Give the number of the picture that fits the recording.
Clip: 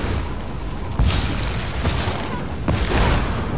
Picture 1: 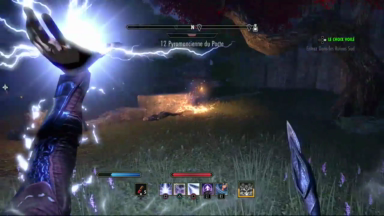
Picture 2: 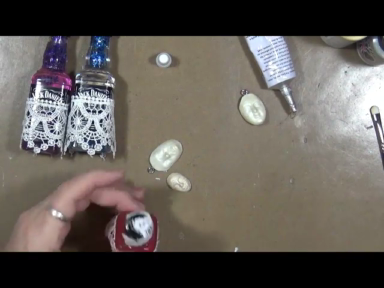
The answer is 1